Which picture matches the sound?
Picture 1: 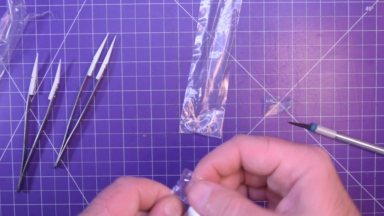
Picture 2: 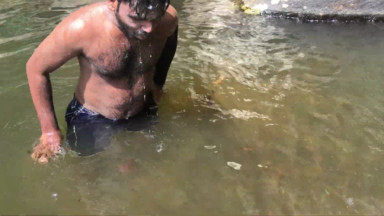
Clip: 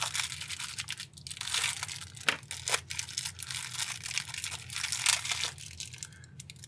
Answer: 1